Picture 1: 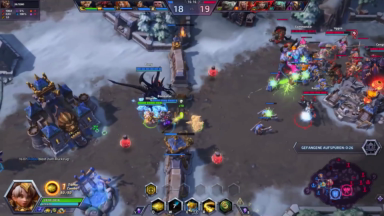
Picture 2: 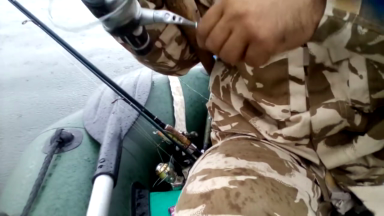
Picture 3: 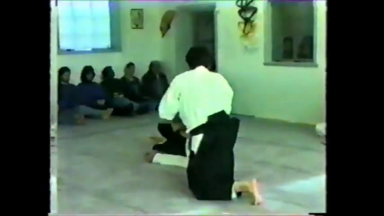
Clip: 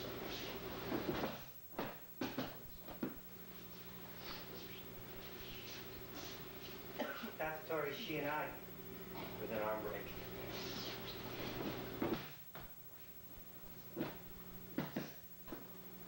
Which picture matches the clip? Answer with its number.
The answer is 3